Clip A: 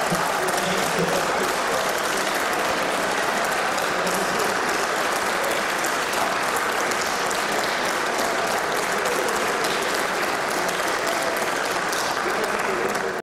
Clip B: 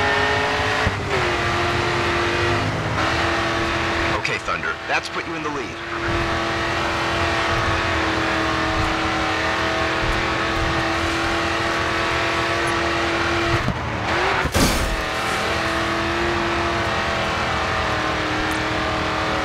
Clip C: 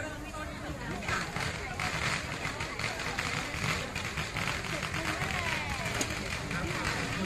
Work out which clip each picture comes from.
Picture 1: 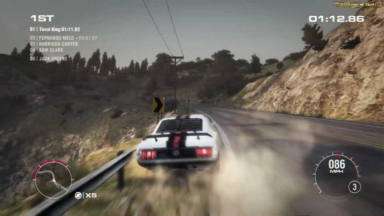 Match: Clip B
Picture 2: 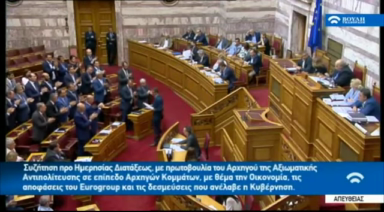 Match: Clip A